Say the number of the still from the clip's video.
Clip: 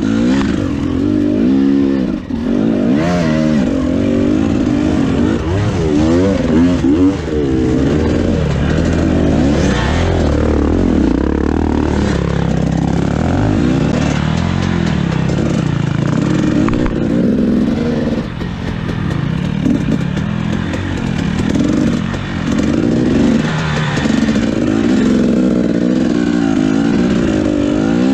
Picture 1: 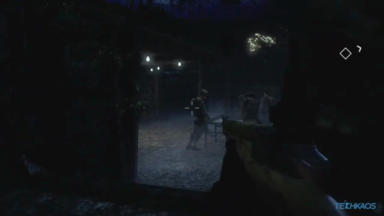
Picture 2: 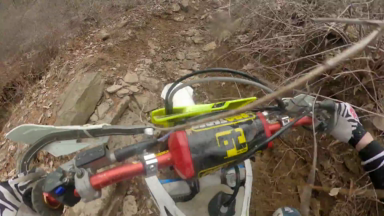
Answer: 2